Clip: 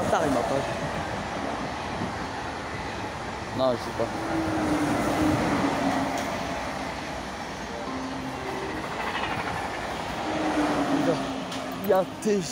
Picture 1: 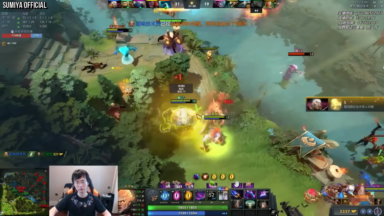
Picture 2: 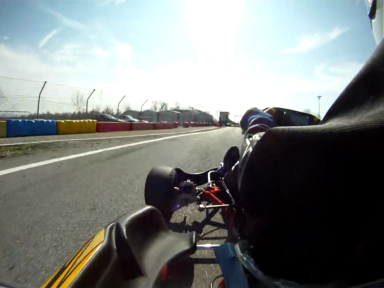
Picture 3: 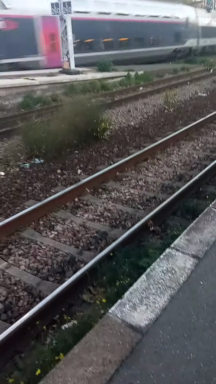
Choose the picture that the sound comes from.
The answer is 3